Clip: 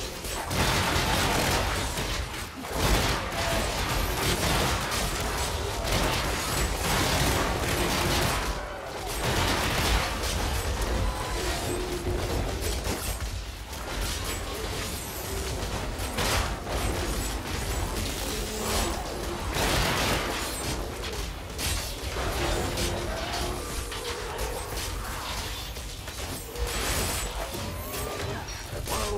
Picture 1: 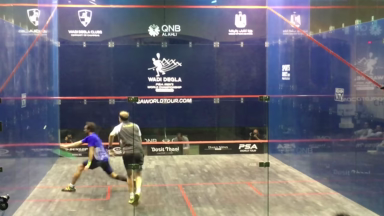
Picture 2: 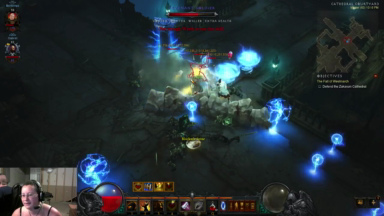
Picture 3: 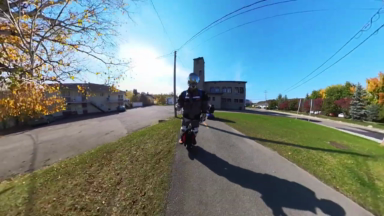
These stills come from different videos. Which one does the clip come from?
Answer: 2